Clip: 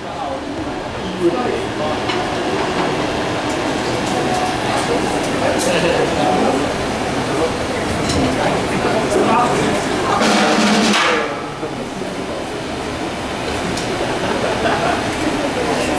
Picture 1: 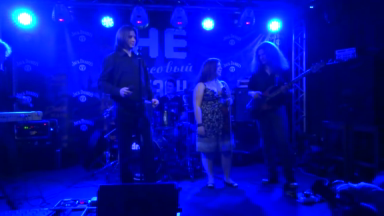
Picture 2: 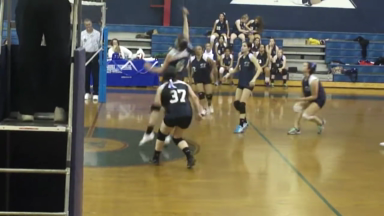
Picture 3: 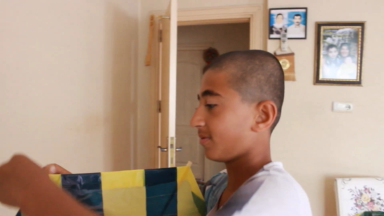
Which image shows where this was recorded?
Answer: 1